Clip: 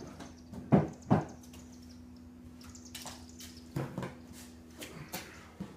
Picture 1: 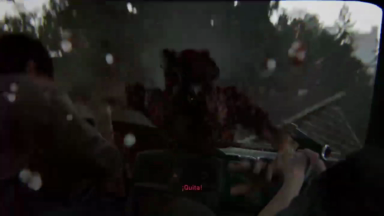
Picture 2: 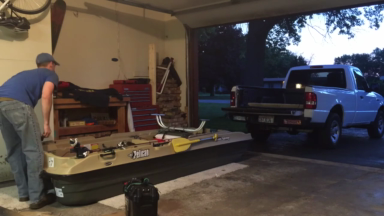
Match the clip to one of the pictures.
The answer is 2